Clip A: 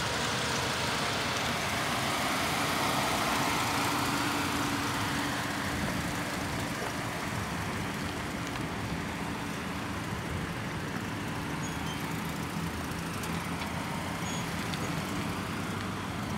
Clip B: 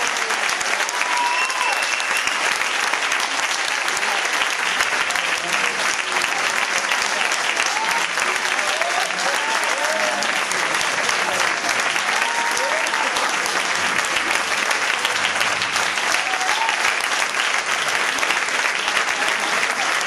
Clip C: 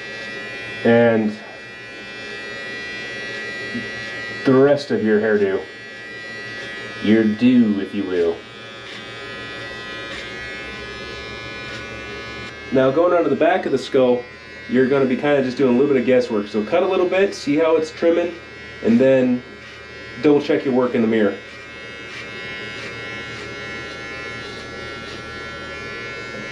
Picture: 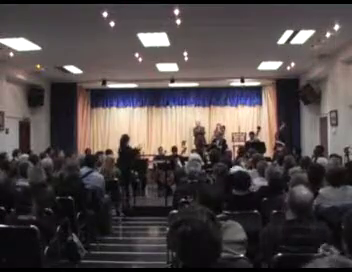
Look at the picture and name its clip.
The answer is B